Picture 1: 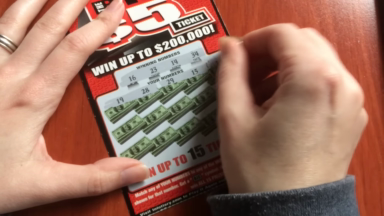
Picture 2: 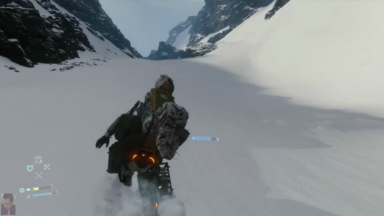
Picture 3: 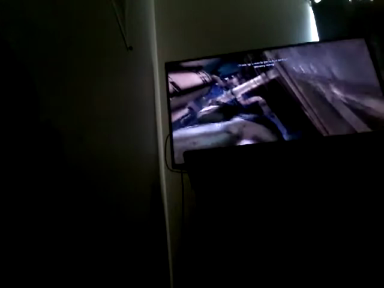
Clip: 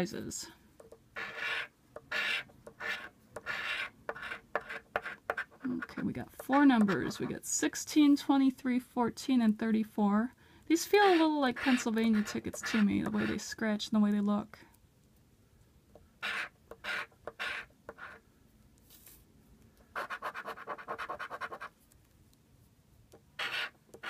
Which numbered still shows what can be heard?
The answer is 1